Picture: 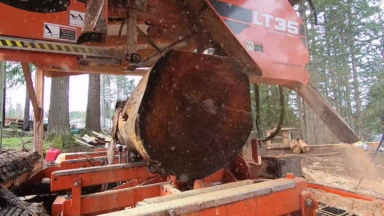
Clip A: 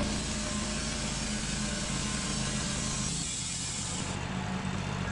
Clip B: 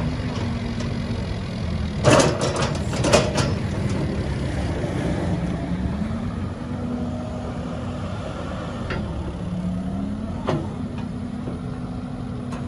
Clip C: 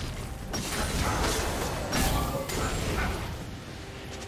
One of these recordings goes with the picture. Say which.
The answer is A